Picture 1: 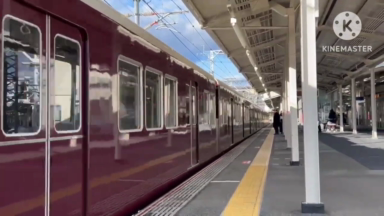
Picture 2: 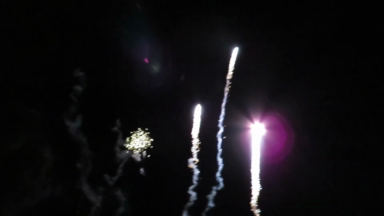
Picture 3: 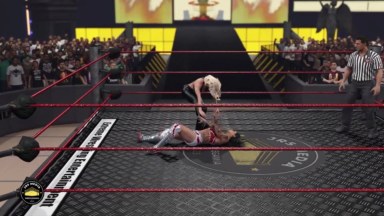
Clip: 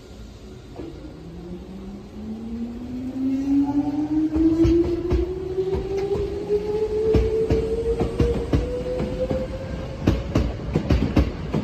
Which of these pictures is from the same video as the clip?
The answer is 1